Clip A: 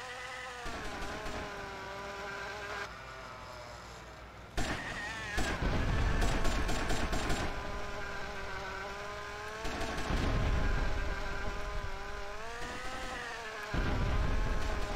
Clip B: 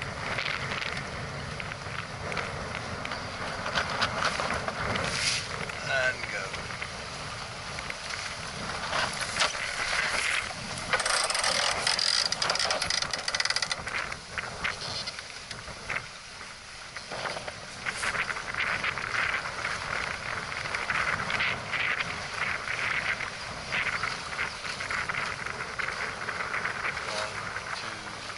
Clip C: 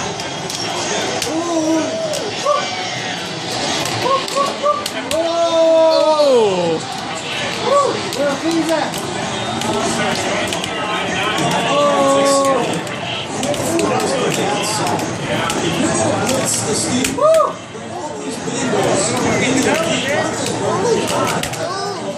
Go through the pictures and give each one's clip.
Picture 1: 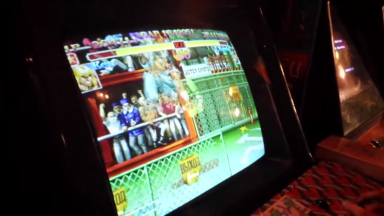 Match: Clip C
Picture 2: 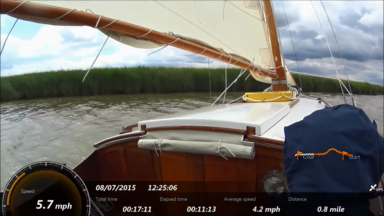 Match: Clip B